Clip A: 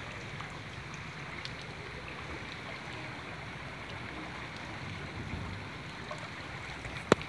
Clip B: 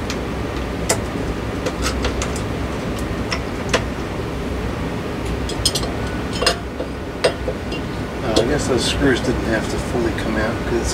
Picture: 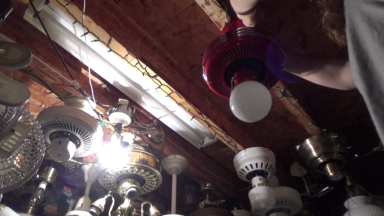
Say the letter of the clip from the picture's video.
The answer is B